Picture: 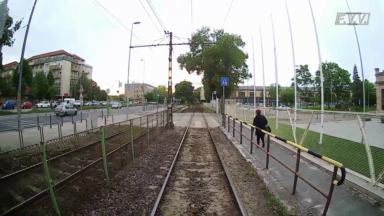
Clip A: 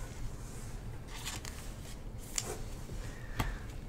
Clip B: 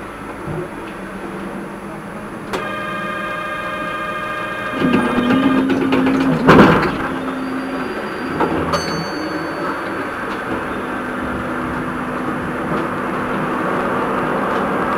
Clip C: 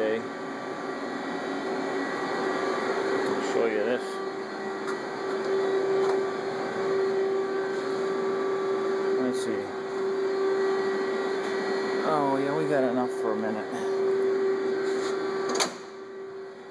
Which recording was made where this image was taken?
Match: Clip B